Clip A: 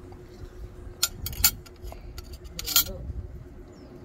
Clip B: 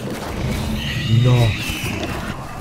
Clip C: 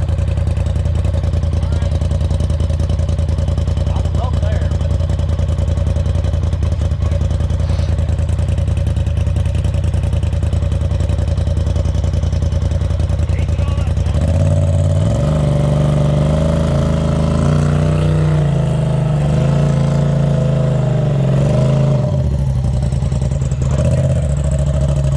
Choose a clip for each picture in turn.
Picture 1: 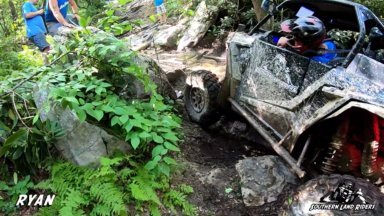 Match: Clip C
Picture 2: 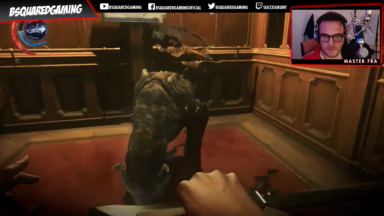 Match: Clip B